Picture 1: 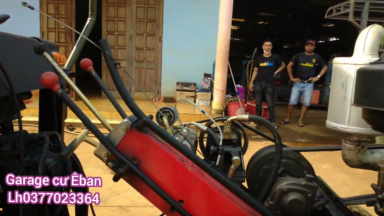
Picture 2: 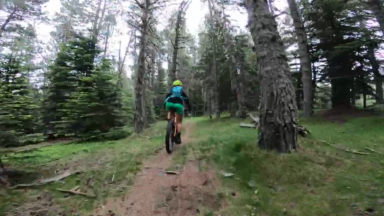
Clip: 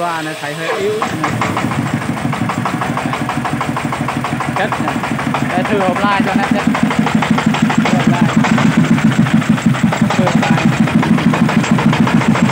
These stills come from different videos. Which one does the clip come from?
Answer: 1